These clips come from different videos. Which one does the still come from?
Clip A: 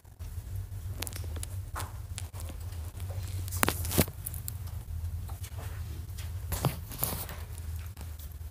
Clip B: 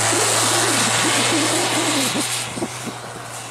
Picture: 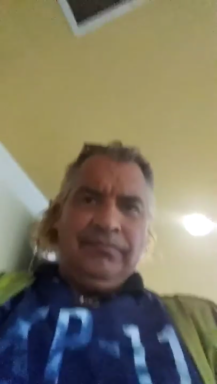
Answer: A